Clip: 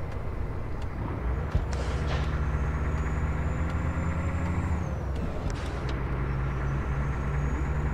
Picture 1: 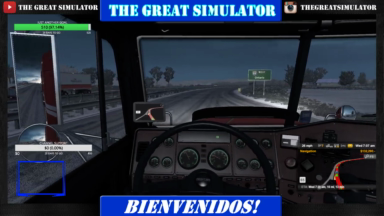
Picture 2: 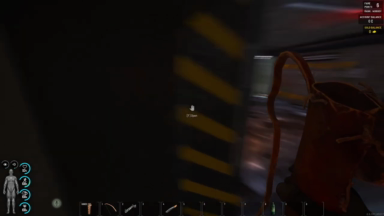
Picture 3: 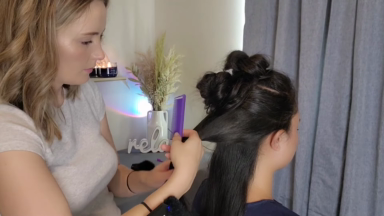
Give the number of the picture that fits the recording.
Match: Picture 1